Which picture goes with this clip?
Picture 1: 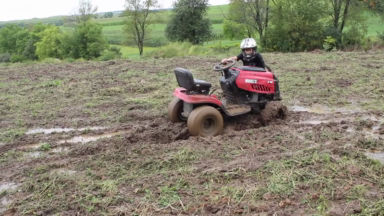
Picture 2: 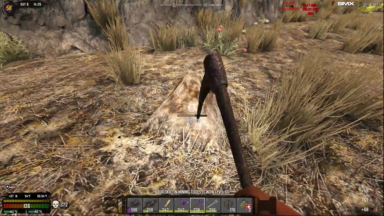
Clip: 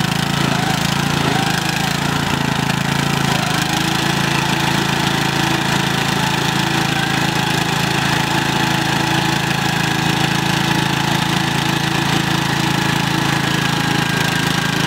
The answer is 1